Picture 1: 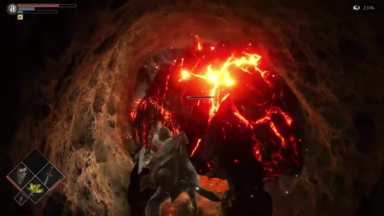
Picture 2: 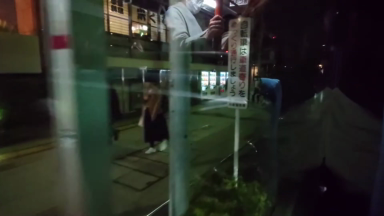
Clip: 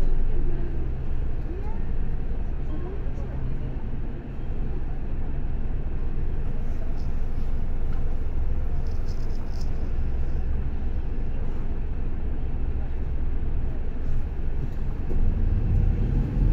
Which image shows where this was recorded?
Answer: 2